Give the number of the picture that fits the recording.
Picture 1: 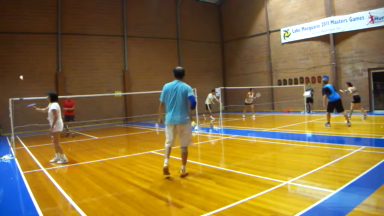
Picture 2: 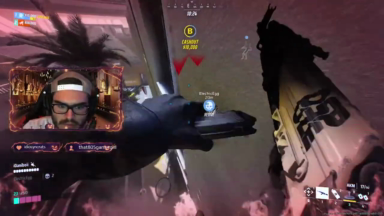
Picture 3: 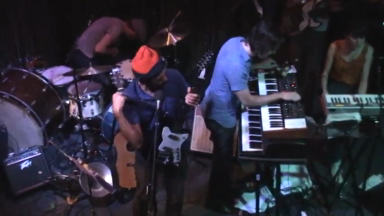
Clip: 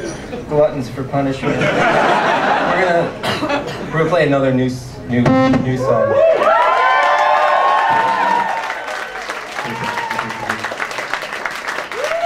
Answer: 3